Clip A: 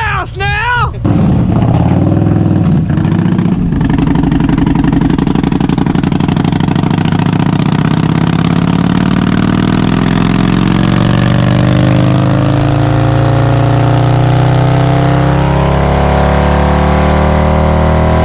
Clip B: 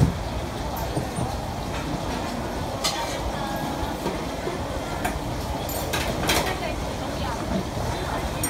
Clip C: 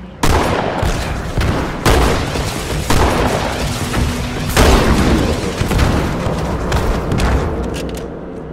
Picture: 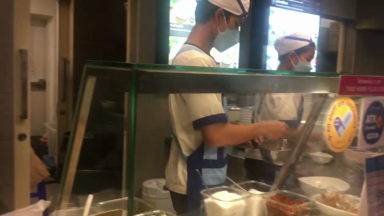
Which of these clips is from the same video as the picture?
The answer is B